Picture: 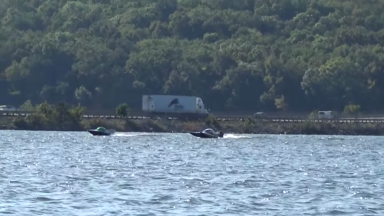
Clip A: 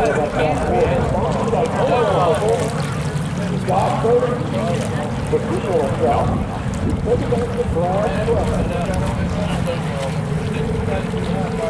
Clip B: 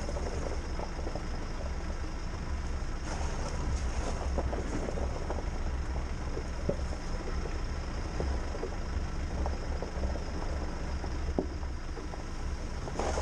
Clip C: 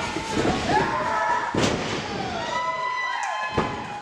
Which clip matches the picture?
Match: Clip A